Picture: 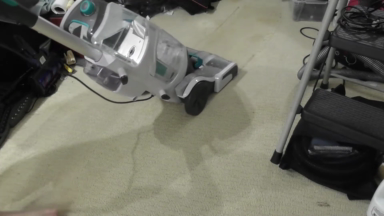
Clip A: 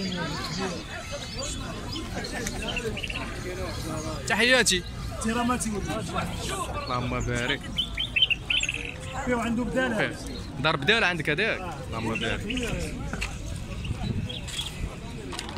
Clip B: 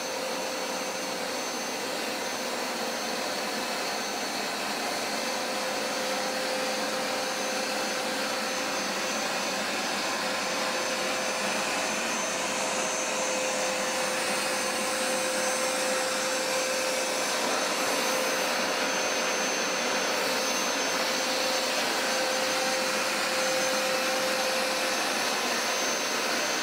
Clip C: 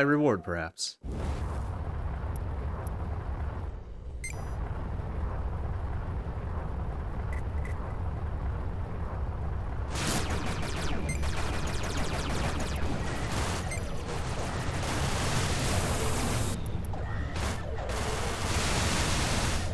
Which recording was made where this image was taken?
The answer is B